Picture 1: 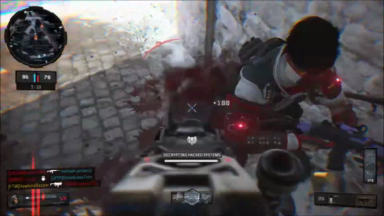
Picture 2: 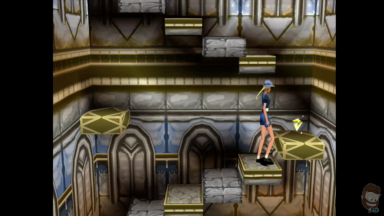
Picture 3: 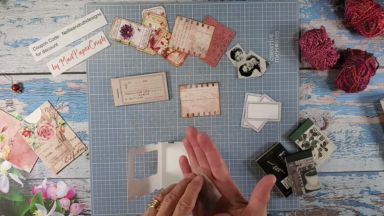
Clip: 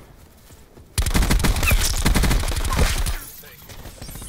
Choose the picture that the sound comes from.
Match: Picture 1